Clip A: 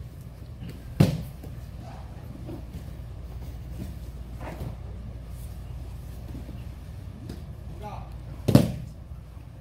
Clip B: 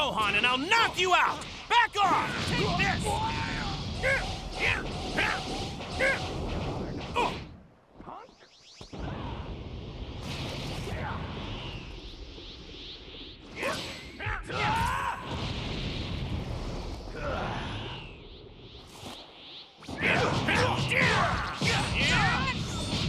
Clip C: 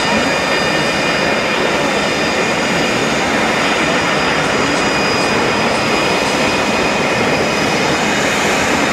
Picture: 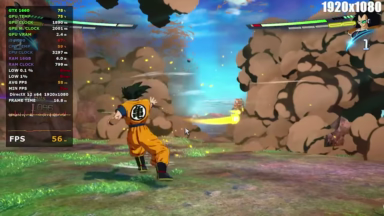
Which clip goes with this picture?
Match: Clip B